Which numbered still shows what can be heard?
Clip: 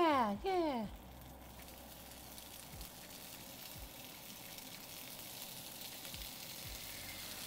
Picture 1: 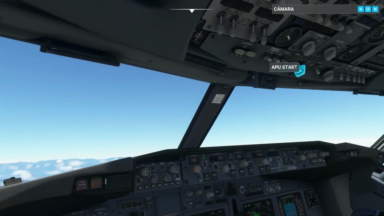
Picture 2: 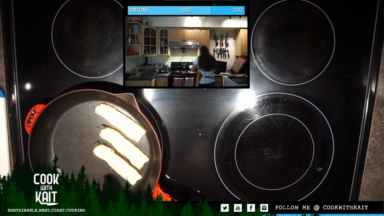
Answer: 2